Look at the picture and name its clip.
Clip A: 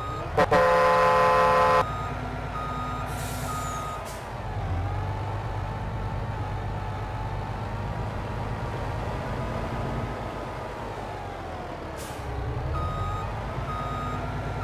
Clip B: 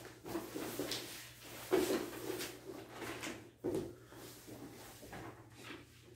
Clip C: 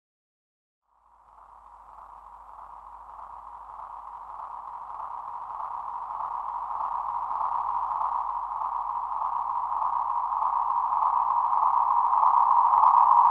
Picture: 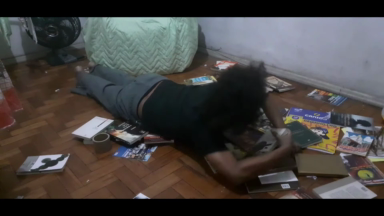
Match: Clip B